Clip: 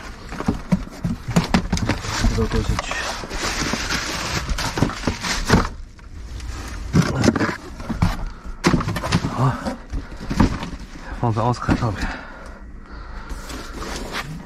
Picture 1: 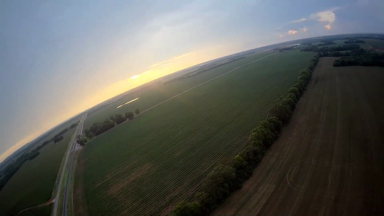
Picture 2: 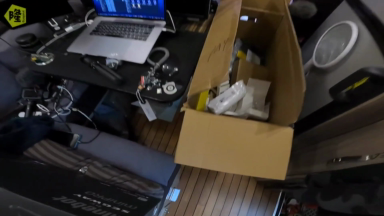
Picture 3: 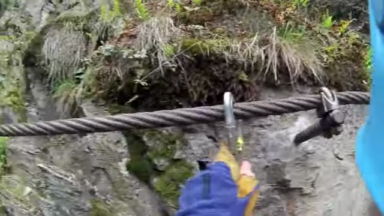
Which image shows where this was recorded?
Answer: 2